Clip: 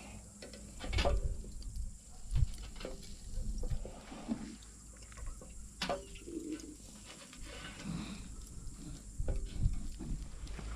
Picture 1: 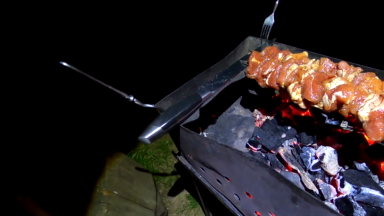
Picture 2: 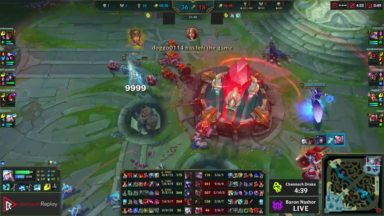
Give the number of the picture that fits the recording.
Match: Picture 1